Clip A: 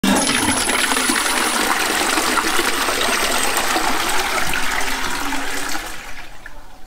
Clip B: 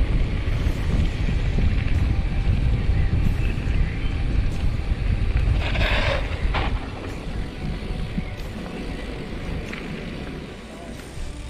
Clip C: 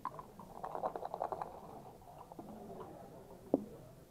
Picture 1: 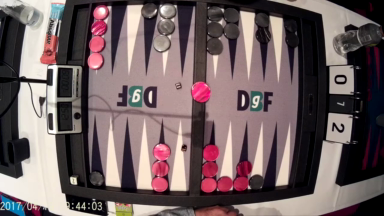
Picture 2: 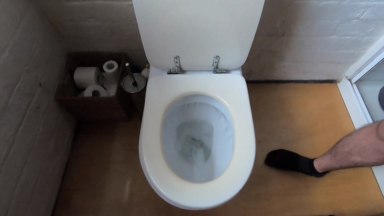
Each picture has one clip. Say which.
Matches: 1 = C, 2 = A